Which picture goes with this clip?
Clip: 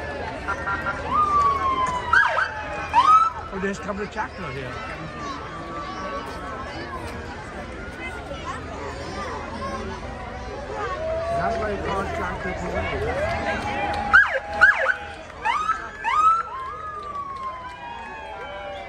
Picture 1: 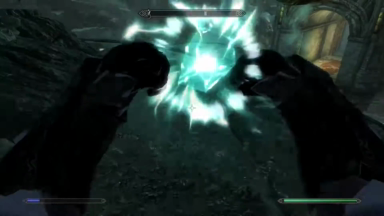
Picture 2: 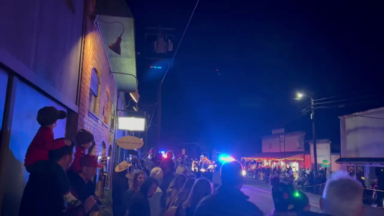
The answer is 2